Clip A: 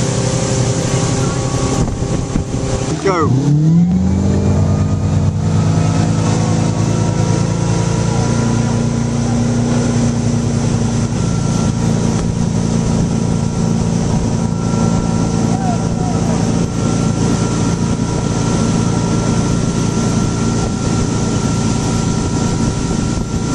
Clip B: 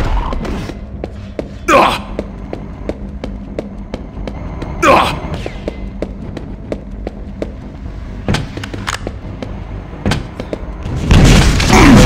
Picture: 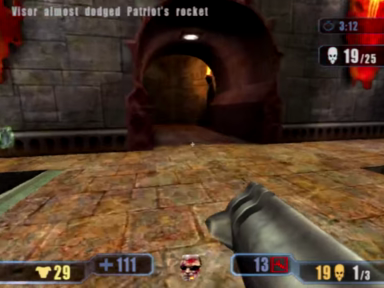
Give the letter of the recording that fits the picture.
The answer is B